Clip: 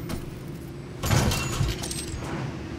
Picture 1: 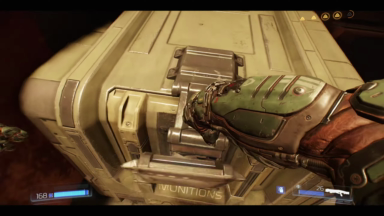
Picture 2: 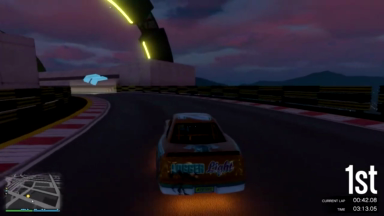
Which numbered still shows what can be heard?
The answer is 1